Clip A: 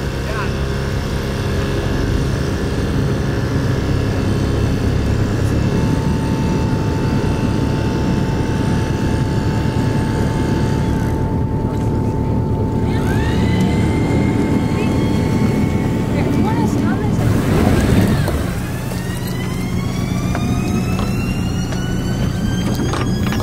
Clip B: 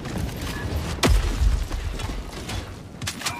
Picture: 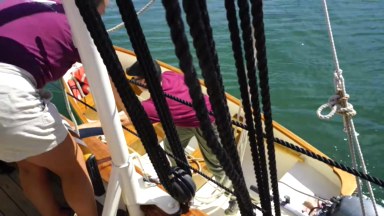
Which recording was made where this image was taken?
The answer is A